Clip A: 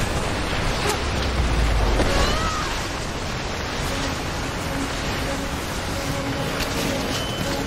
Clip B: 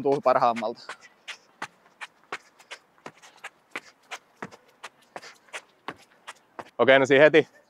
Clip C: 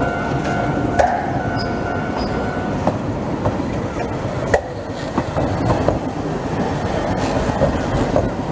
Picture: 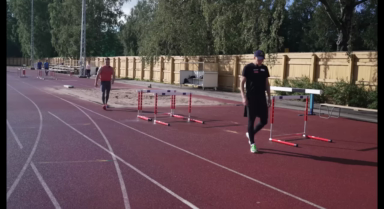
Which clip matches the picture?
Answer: B